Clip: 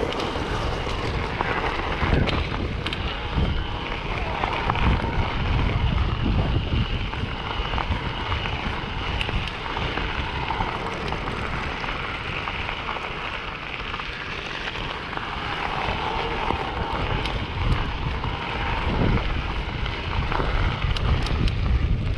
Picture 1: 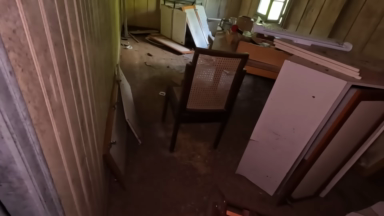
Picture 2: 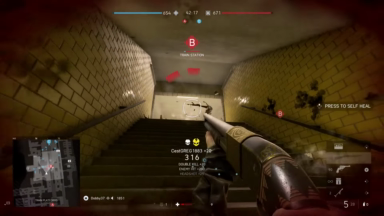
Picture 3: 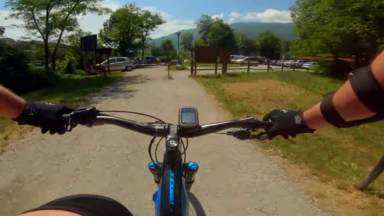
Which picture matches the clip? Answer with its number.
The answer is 3